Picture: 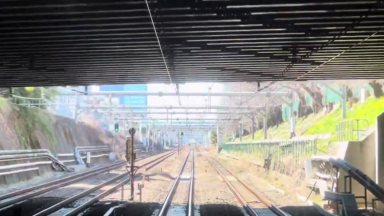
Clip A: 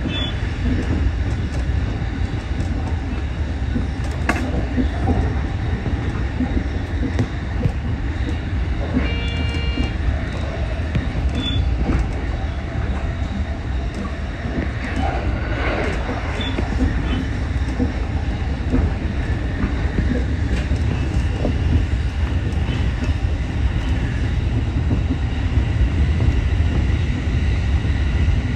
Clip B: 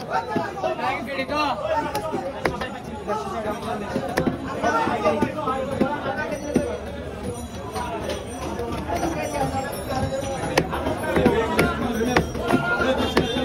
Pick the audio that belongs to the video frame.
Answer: A